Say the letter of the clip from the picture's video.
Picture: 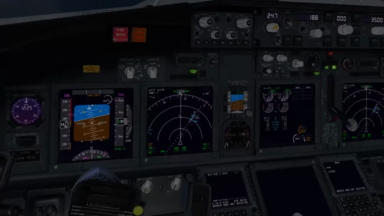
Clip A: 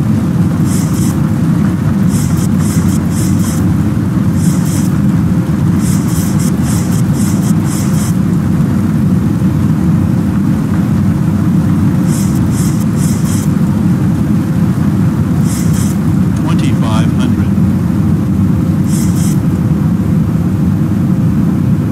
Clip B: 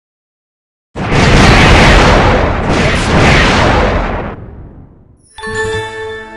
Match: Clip A